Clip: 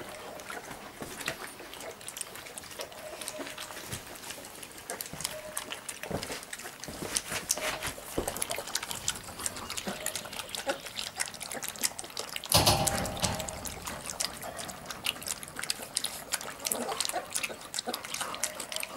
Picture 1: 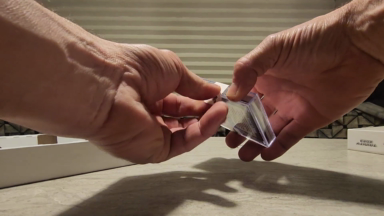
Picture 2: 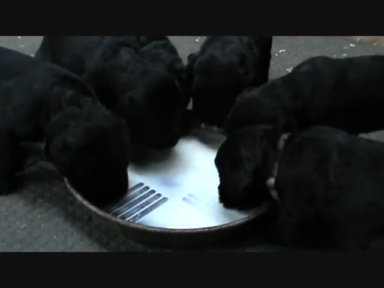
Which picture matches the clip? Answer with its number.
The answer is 2